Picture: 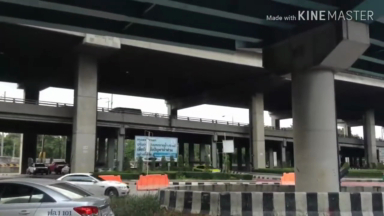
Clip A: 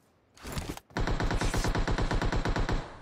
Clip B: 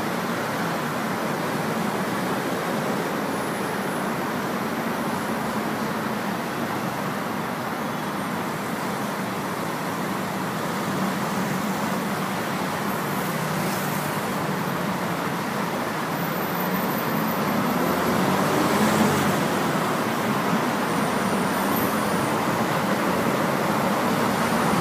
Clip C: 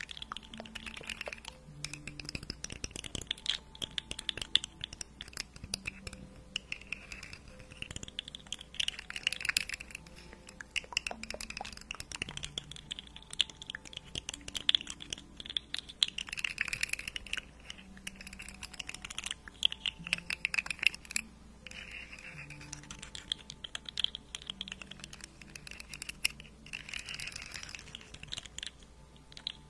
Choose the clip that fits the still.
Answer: B